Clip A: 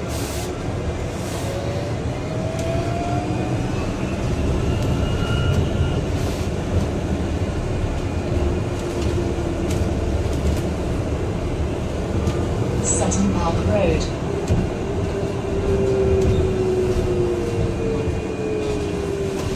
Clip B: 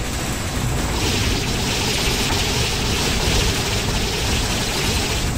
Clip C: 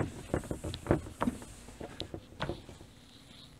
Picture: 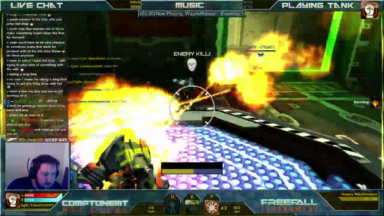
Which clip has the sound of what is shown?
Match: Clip B